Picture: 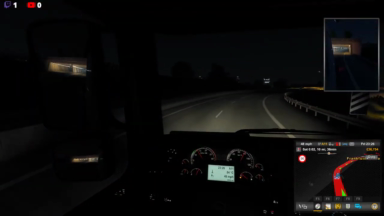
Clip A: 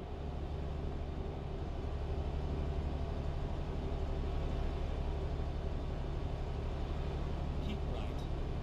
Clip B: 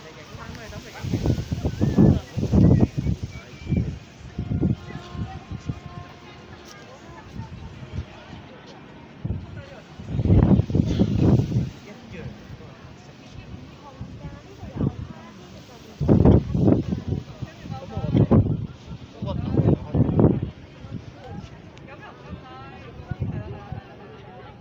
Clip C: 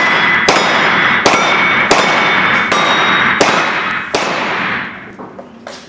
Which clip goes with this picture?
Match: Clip A